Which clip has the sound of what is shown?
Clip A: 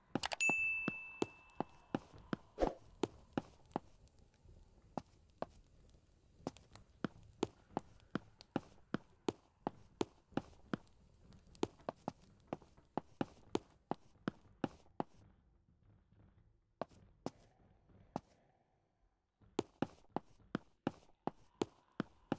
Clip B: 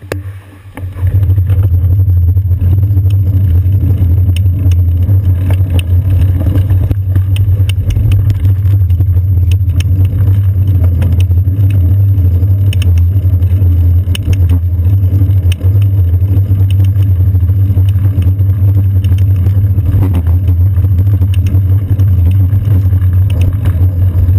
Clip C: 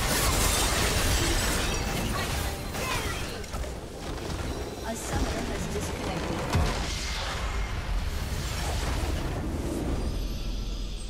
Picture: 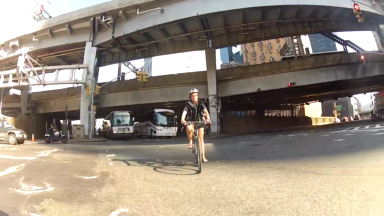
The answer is B